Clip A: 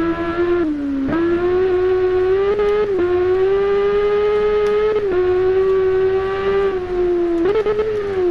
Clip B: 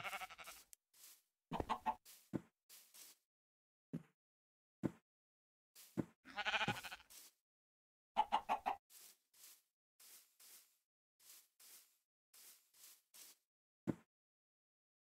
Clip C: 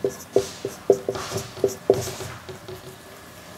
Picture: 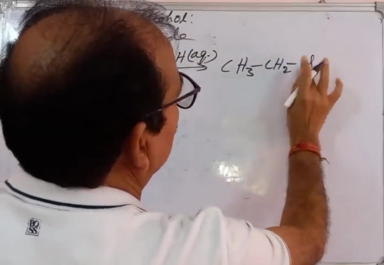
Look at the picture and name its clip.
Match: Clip C